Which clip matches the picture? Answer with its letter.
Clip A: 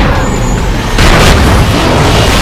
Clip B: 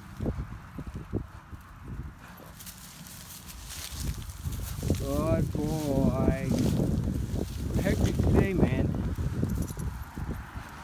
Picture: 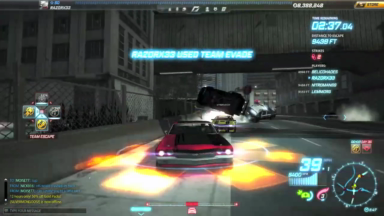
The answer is A